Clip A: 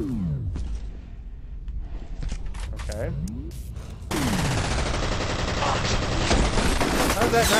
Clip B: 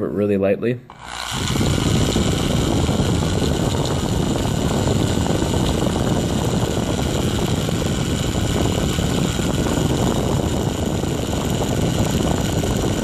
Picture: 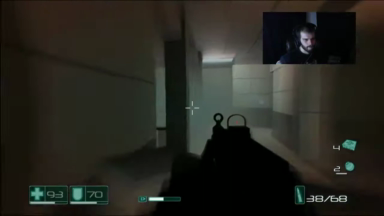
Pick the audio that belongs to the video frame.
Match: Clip A